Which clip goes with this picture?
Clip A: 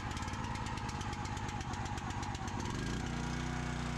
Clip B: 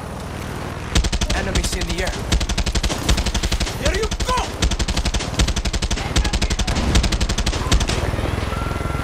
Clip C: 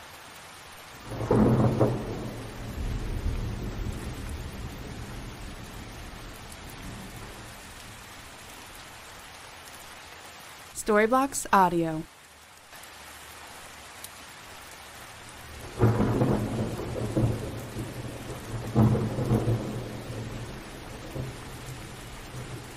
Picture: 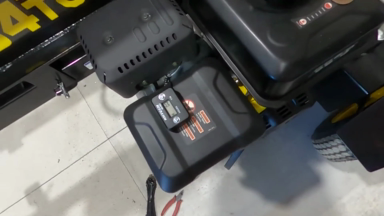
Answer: A